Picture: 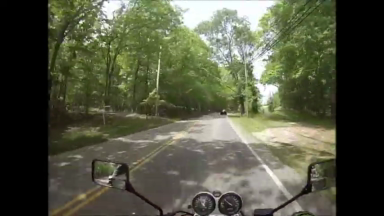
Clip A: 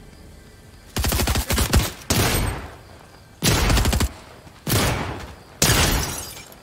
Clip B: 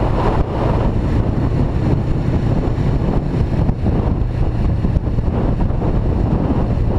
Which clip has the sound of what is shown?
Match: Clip B